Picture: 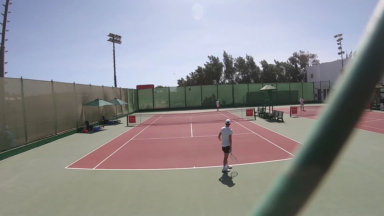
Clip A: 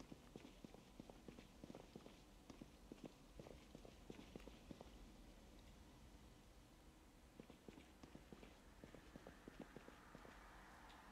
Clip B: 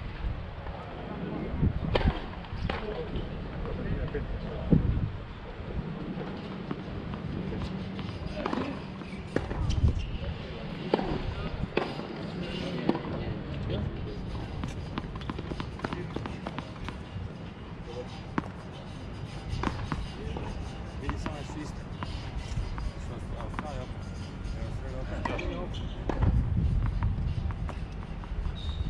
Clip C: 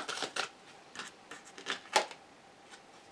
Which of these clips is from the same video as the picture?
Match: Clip B